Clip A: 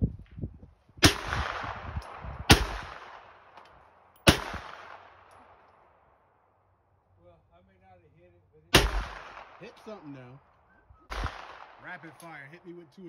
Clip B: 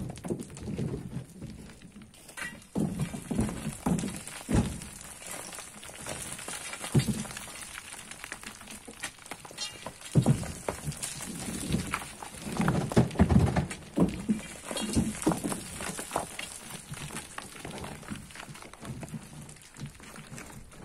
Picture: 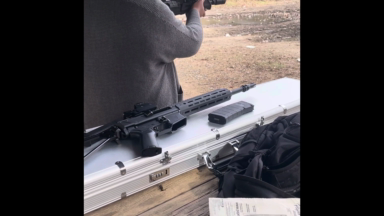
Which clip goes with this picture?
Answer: A